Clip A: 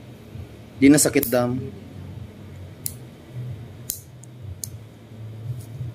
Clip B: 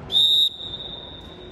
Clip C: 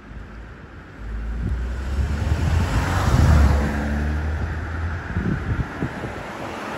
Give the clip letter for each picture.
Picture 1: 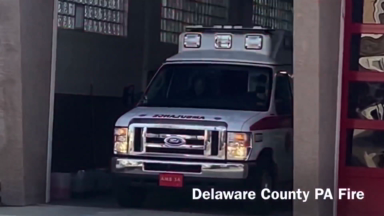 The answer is C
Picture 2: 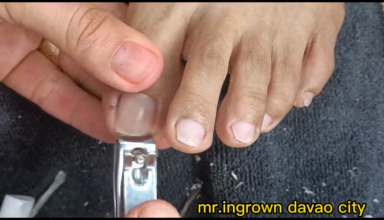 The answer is A